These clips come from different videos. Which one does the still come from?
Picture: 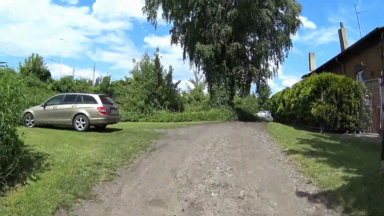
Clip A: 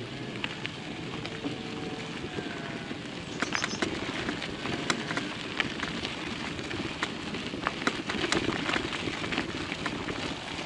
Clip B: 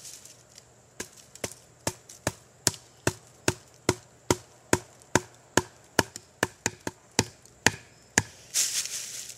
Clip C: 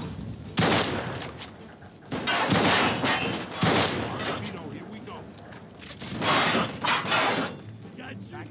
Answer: A